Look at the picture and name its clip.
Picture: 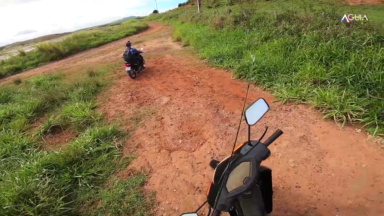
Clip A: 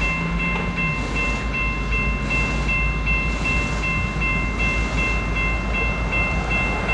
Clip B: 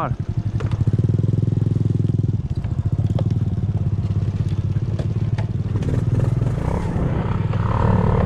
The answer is B